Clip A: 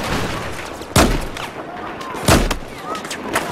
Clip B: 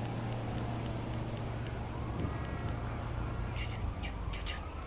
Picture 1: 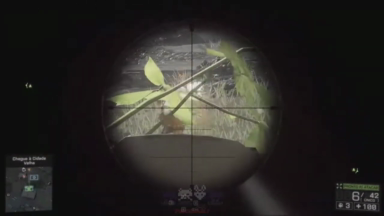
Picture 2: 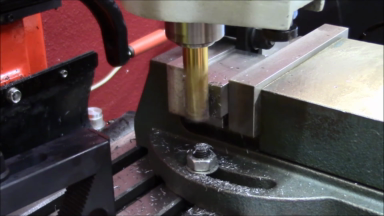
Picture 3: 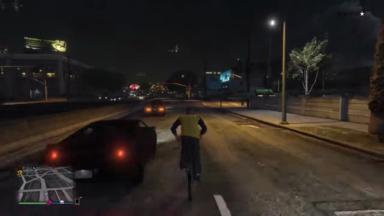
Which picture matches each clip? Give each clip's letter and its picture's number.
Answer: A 1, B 3